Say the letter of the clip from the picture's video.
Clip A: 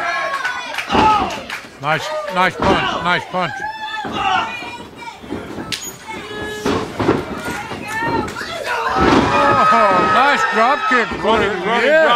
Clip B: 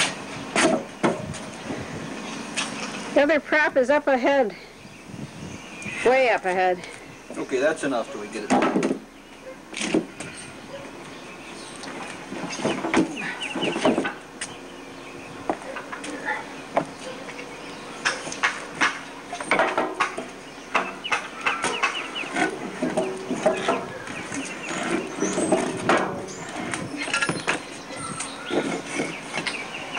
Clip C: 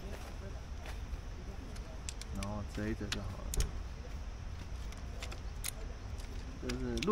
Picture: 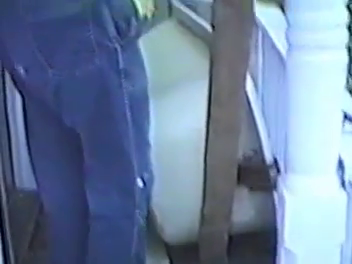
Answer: B